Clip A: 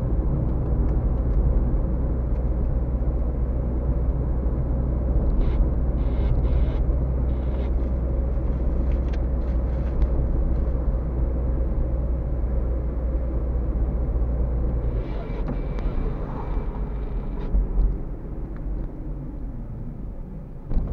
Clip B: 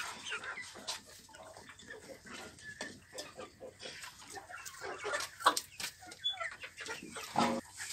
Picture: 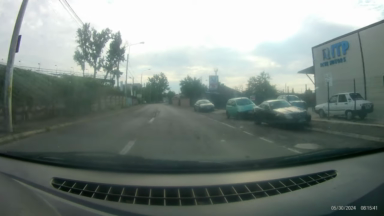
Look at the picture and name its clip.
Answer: A